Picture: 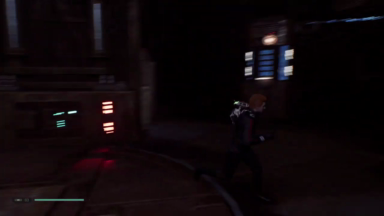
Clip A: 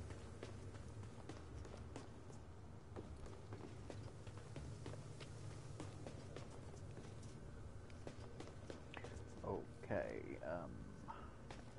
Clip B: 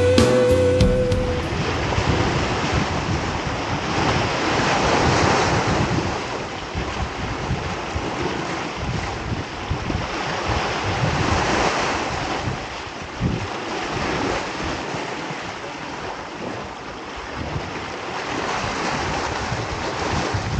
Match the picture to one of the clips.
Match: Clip A